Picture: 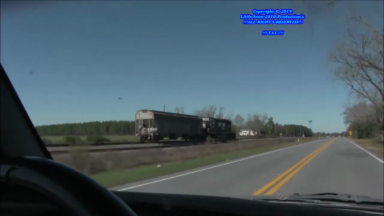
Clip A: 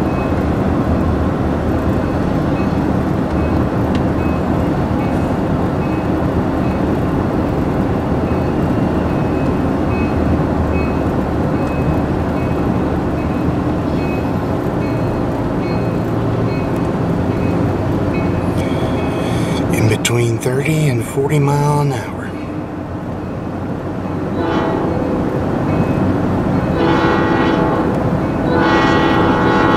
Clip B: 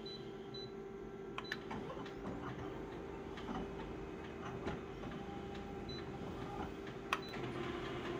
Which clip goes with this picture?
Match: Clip A